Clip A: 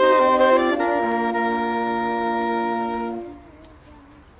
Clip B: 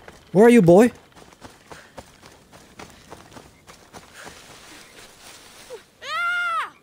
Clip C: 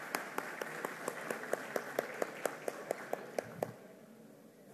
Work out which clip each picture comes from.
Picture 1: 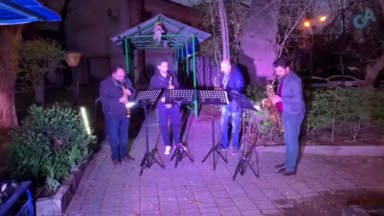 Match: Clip A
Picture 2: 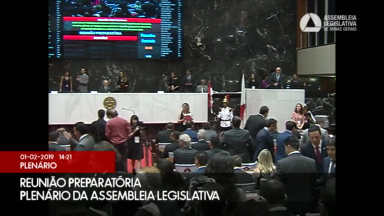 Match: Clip C